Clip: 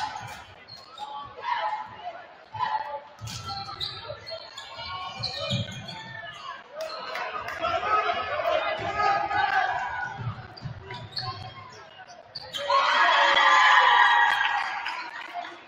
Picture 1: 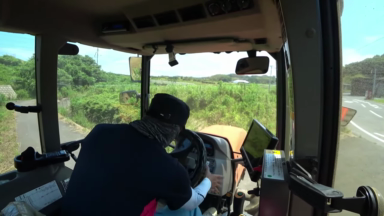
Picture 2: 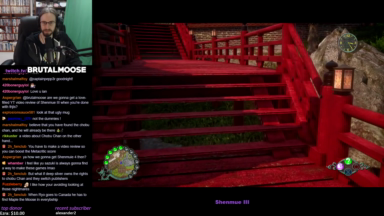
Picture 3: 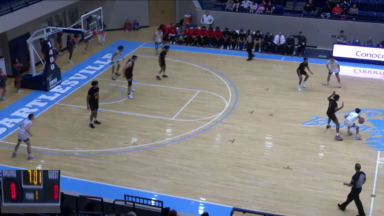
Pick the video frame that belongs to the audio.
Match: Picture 3